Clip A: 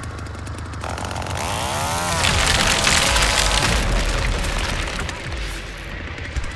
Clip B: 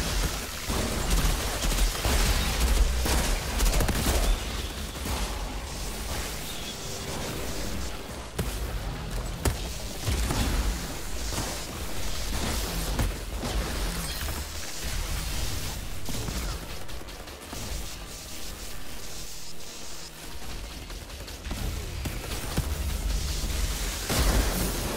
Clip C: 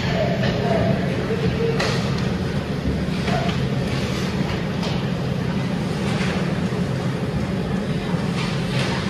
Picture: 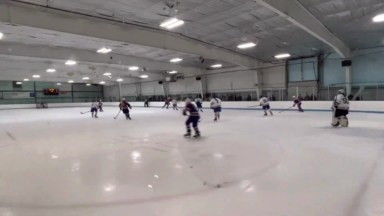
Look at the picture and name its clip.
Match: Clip C